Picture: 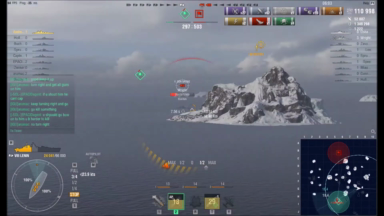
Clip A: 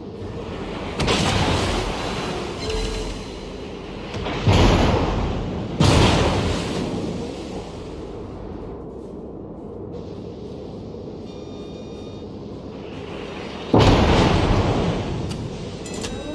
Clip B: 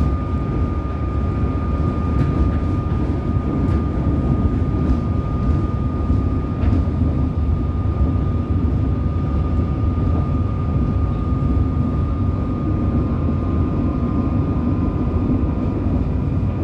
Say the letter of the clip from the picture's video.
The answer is A